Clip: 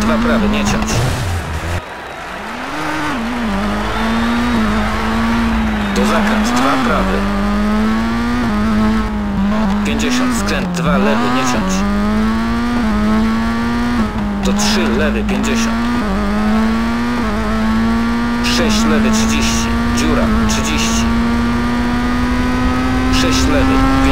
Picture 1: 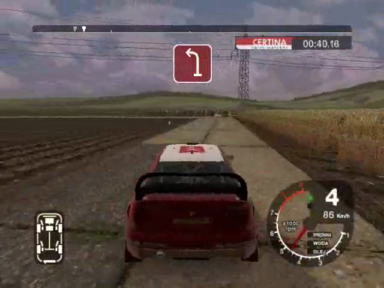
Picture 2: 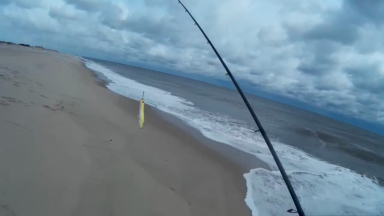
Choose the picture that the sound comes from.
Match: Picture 1